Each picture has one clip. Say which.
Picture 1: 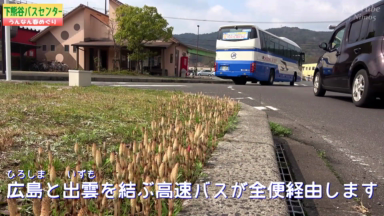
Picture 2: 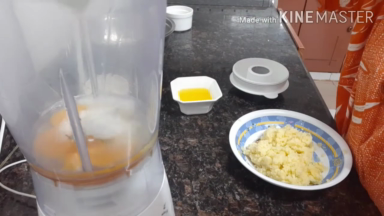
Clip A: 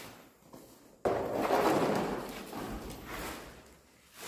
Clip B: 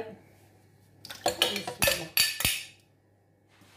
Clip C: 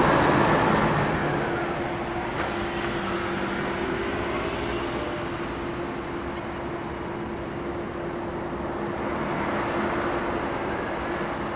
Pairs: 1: C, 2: B